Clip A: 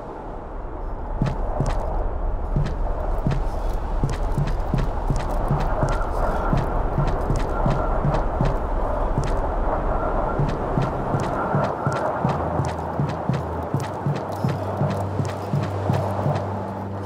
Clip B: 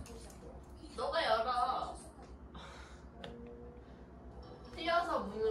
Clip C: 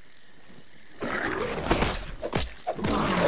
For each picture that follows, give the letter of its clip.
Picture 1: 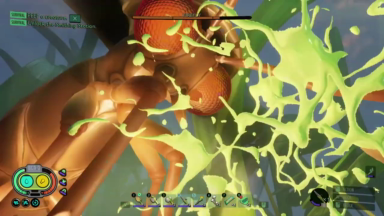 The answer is C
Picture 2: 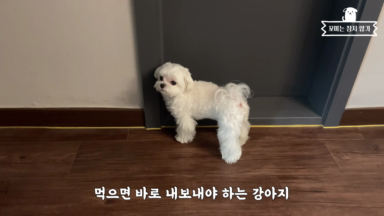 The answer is B